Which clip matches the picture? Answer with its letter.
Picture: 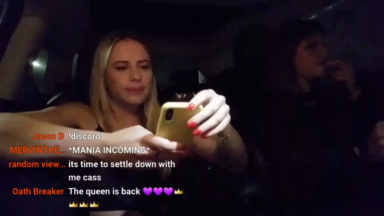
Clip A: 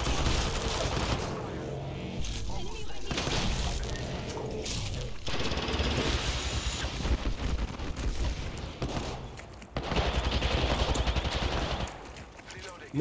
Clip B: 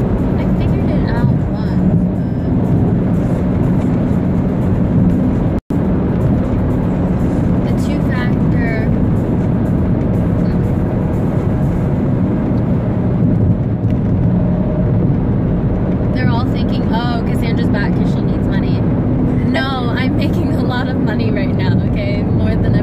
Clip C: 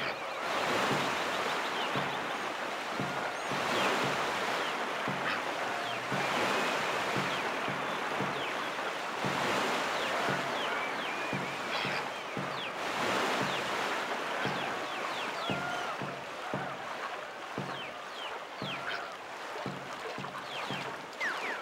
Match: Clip B